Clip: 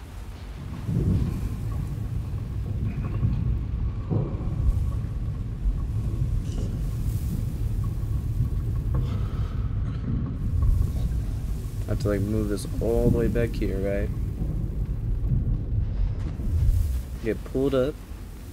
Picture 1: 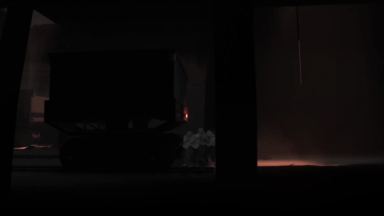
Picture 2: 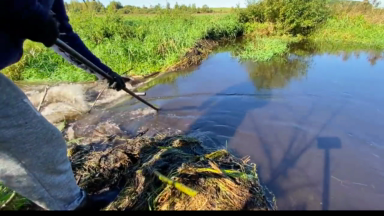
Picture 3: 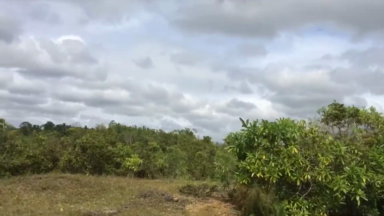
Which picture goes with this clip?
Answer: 1